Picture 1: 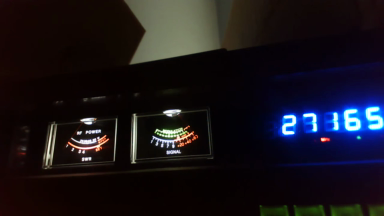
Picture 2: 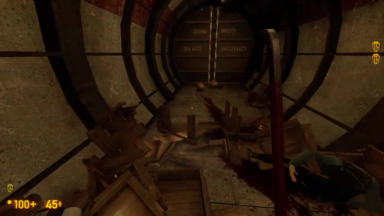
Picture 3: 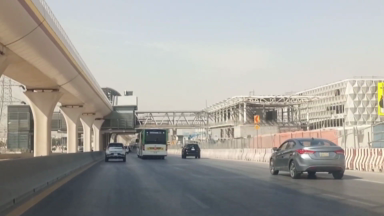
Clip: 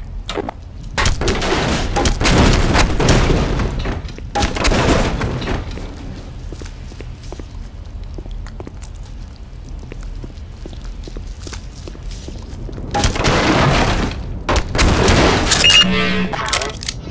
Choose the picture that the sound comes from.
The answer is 2